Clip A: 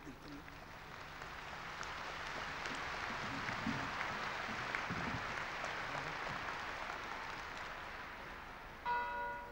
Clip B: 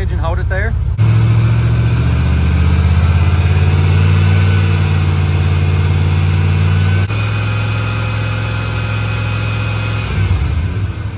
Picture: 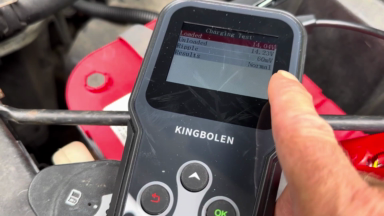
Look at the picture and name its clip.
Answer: B